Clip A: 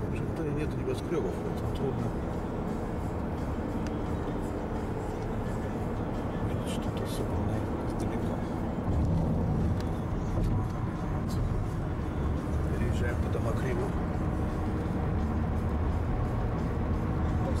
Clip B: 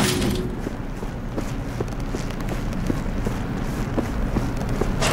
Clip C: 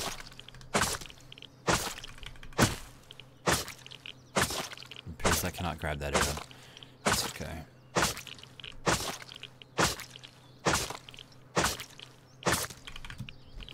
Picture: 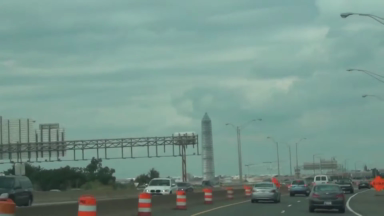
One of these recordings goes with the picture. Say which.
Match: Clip A